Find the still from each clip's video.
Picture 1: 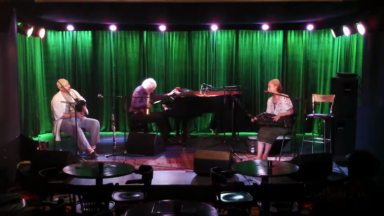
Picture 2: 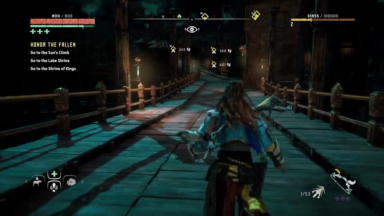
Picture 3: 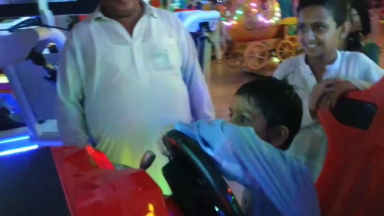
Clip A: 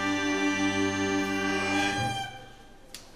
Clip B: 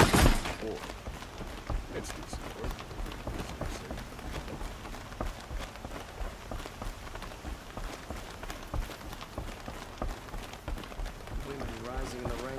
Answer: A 1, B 2